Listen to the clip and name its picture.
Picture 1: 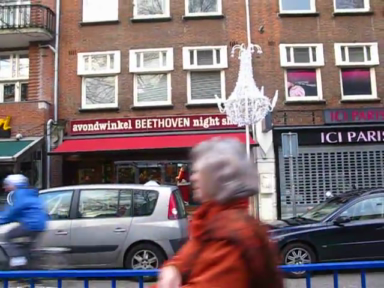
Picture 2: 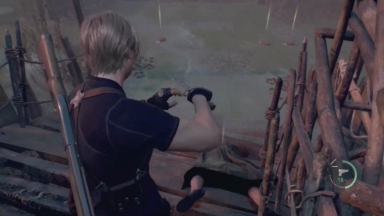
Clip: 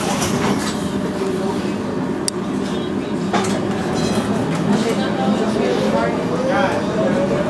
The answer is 1